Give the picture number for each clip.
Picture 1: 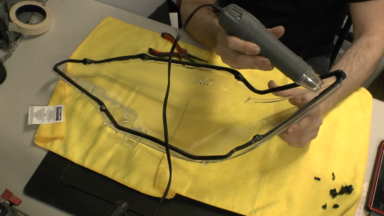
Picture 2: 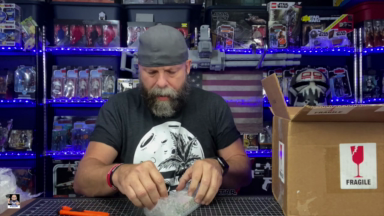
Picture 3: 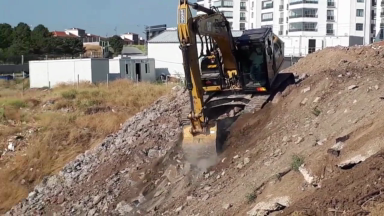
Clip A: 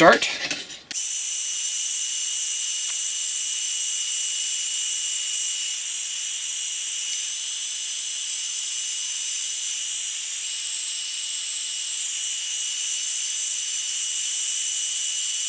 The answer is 1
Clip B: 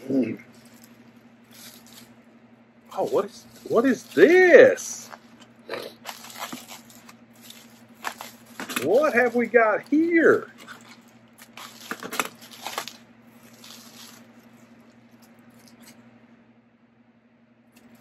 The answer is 2